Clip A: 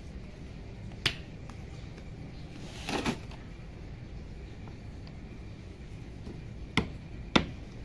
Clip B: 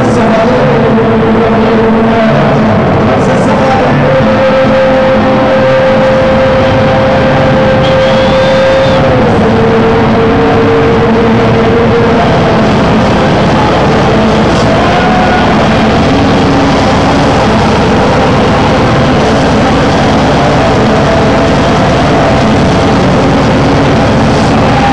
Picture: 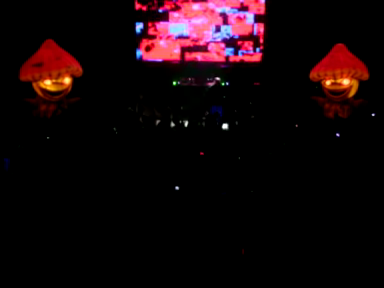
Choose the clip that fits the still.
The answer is B